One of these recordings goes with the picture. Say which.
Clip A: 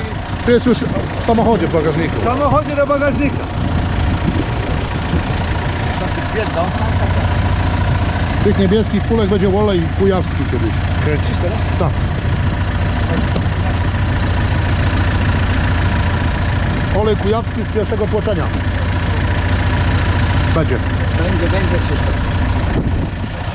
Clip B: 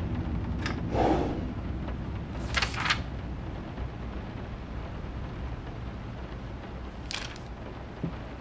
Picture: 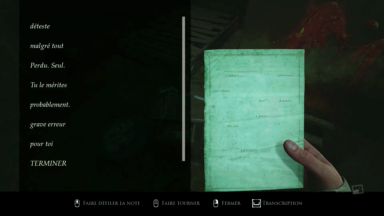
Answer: B